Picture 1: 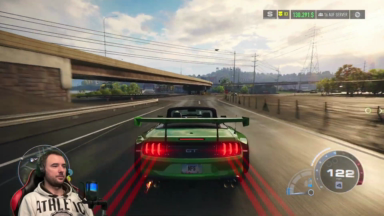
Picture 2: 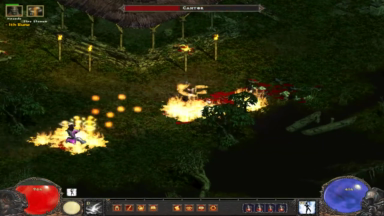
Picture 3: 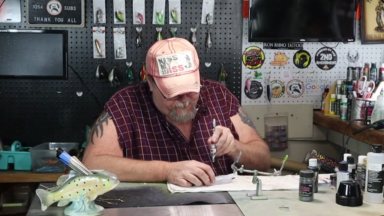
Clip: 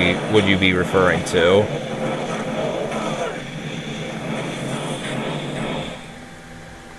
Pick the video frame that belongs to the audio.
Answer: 2